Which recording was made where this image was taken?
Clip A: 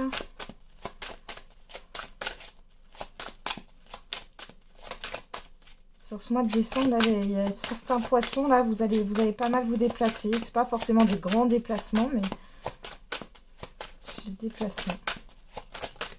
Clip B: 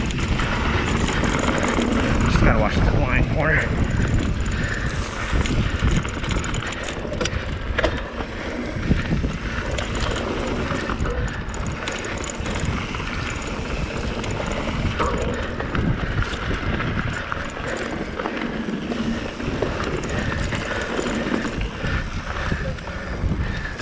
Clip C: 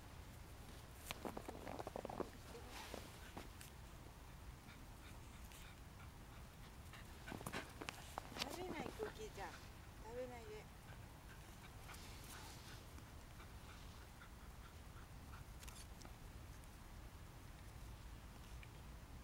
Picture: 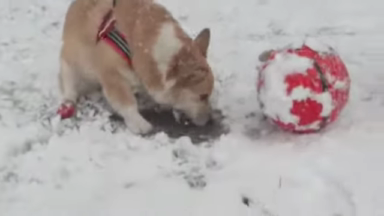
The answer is C